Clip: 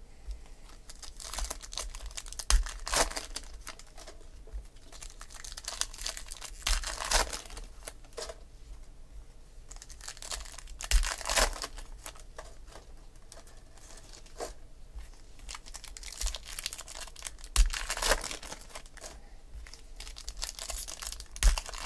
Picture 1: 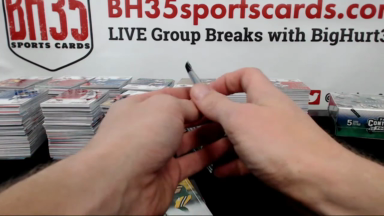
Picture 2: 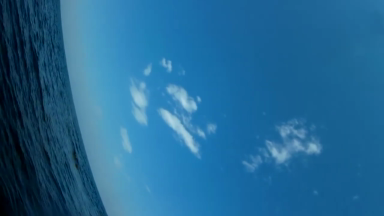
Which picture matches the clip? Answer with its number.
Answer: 1